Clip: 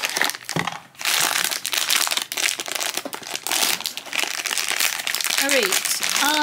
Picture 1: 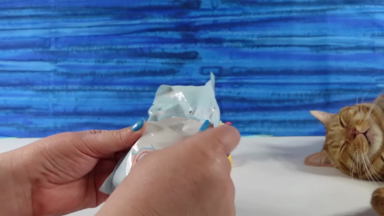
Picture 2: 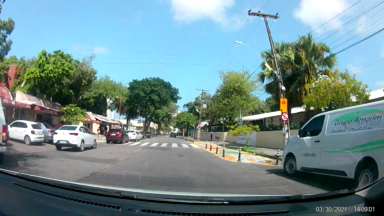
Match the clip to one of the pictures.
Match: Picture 1